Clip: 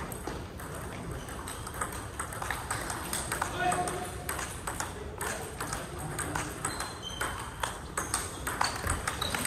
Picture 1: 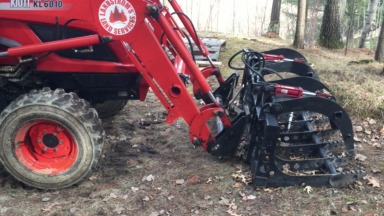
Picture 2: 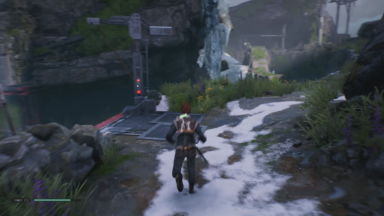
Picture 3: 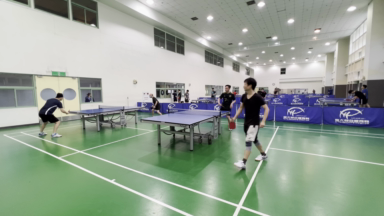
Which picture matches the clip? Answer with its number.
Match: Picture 3